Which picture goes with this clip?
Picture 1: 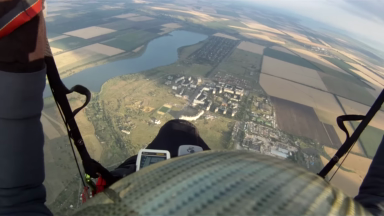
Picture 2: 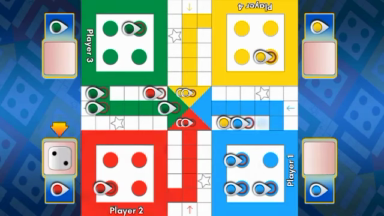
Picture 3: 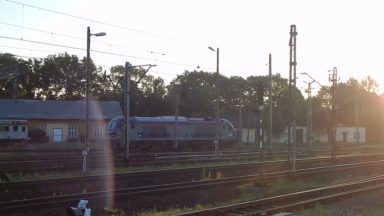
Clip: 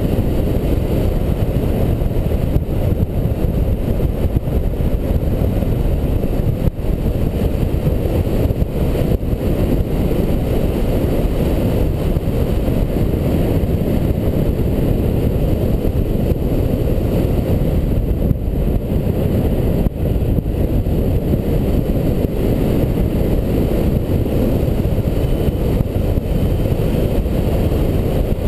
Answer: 1